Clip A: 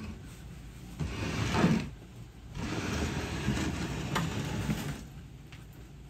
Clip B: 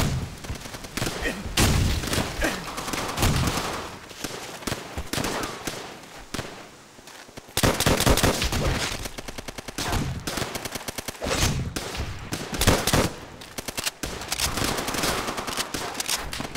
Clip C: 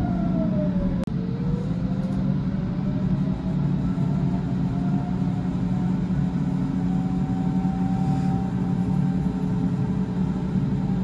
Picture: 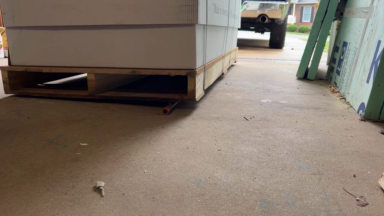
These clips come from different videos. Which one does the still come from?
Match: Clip A